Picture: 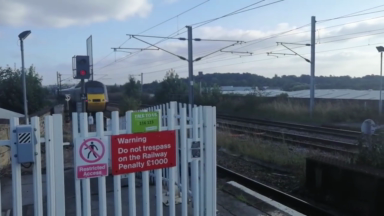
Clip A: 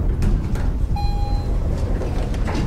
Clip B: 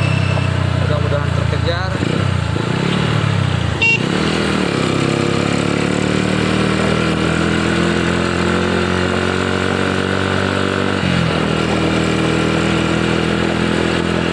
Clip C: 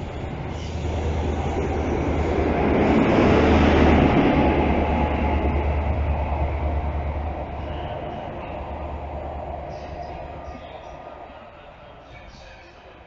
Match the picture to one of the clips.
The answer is C